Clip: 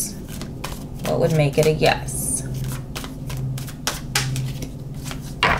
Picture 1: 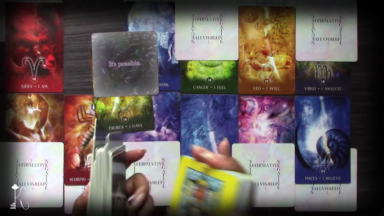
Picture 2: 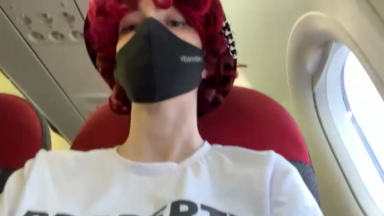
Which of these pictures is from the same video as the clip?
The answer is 1